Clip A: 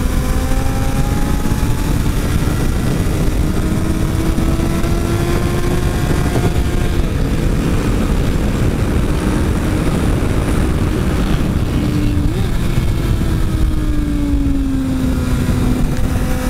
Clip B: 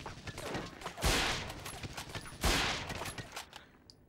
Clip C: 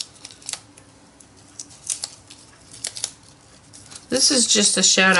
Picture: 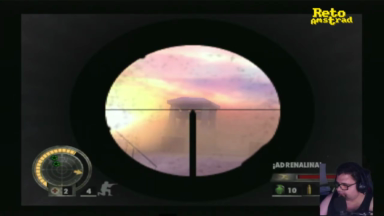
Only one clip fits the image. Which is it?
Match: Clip B